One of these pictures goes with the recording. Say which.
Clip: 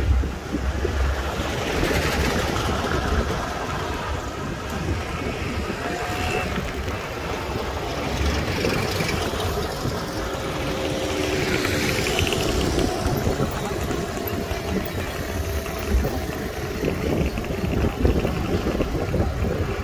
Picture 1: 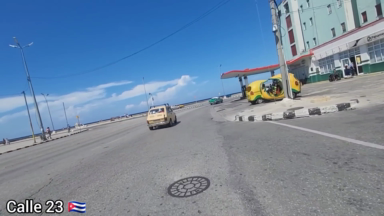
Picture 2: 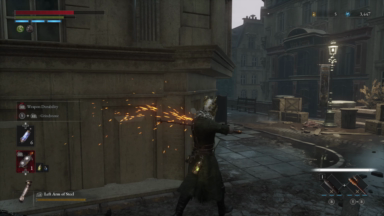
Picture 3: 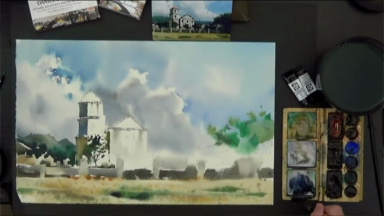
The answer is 1